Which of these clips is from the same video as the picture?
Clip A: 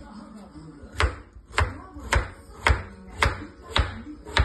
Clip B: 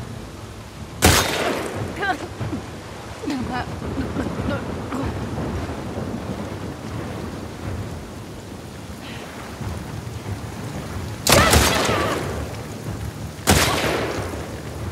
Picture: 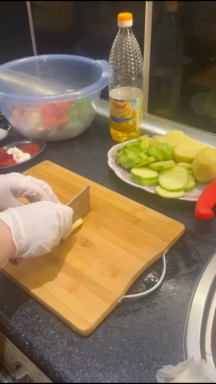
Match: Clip A